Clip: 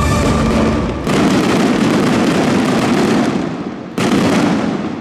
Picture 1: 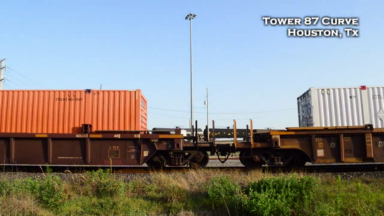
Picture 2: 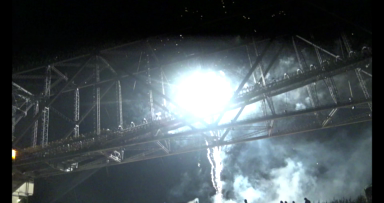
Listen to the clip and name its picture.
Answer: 2